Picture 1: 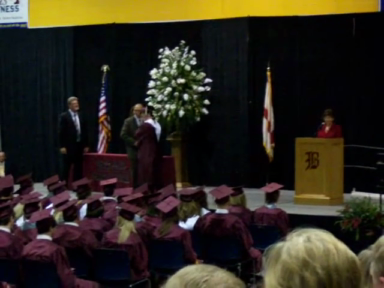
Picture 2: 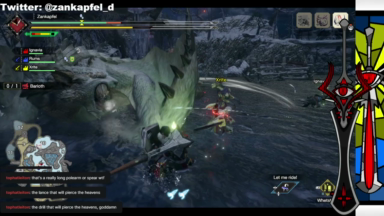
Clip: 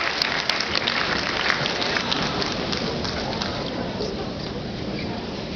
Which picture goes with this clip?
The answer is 1